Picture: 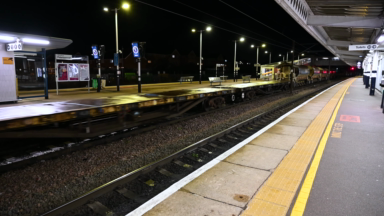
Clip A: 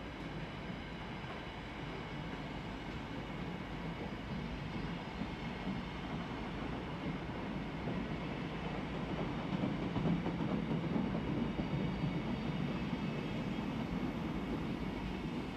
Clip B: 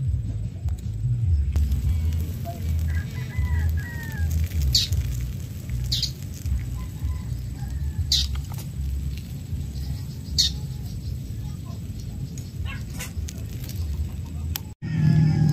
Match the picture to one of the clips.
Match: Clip A